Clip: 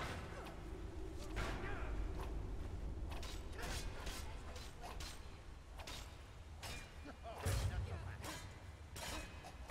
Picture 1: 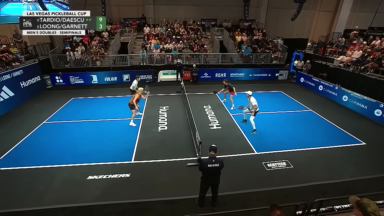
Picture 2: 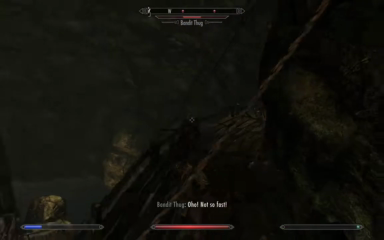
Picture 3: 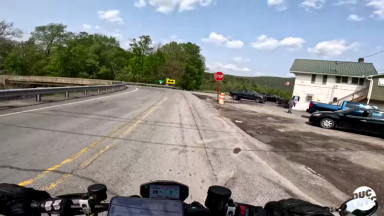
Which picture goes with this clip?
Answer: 2